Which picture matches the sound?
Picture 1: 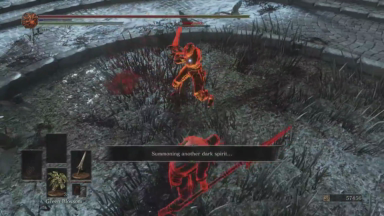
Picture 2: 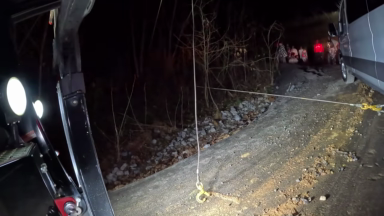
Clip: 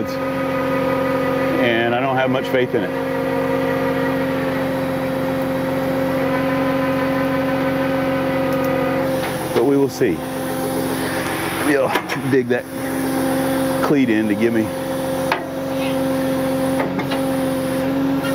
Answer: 2